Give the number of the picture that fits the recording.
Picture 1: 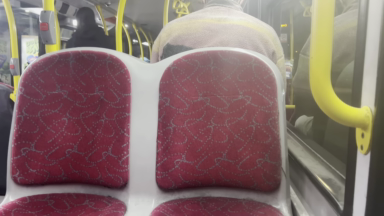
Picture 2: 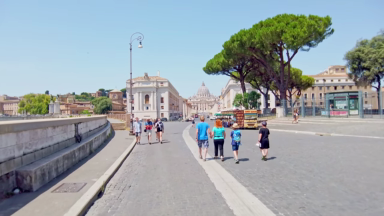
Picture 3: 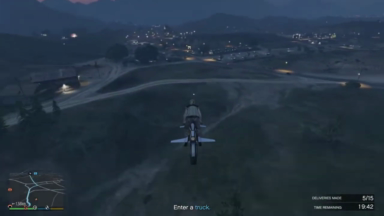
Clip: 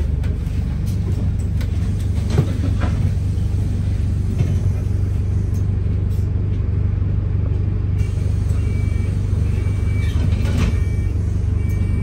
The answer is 1